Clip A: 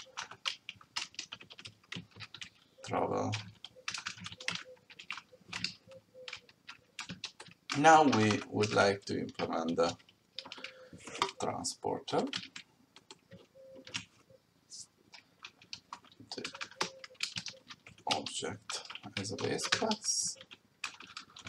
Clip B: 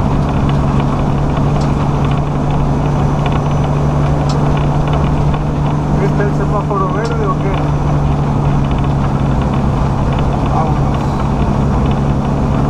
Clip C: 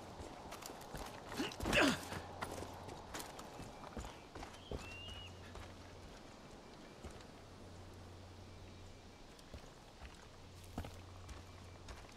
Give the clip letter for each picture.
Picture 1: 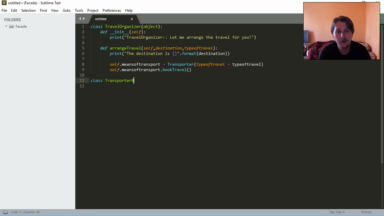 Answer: A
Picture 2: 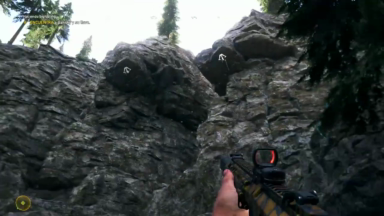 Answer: C